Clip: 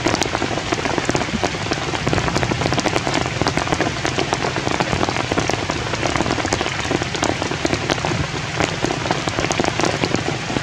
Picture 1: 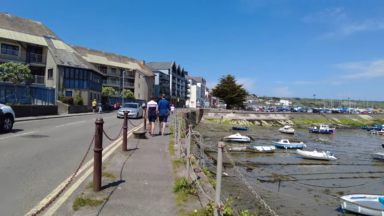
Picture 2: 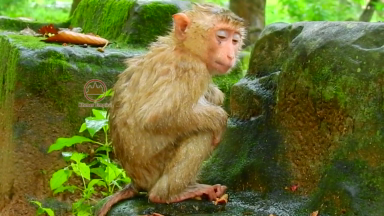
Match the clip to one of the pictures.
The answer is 2